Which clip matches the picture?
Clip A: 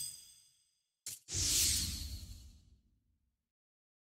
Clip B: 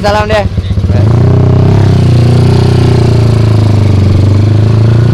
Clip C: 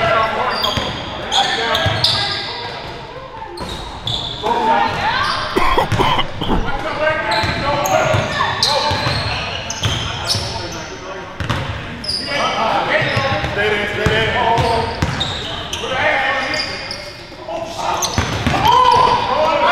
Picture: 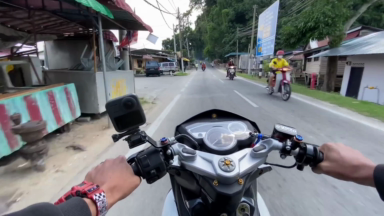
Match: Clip B